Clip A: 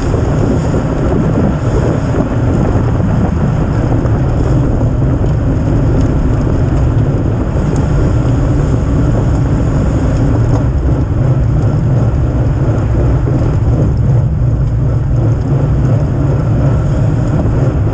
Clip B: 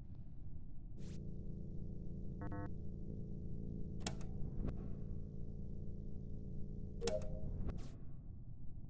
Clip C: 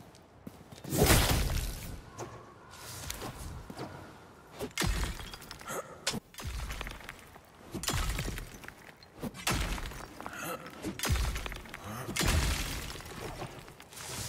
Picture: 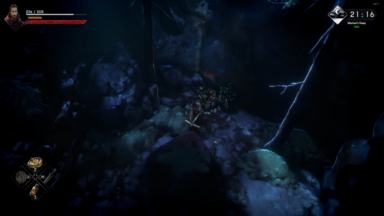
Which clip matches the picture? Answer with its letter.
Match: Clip C